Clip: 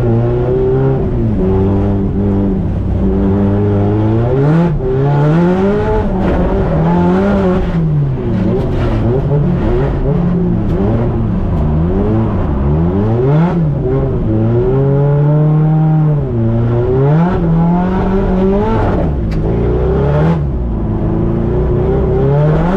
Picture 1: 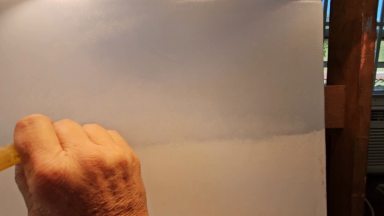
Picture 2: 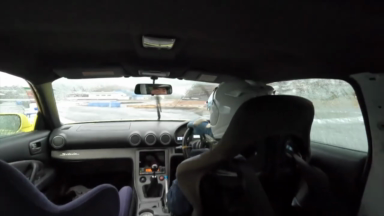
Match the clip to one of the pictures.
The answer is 2